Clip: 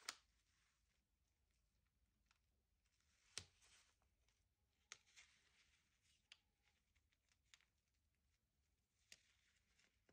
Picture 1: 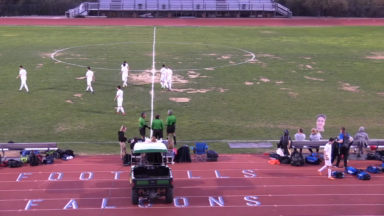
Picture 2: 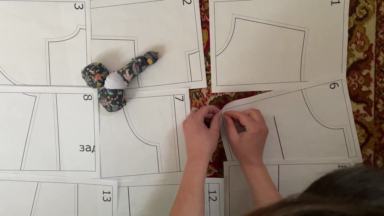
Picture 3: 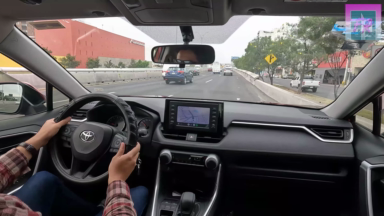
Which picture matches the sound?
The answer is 2